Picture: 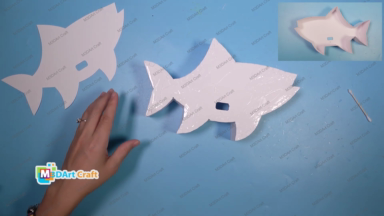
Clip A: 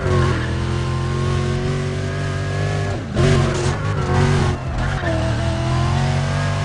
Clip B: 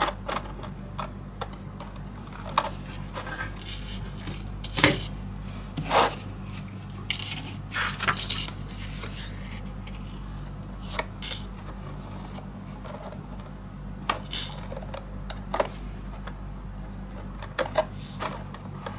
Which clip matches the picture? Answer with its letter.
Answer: B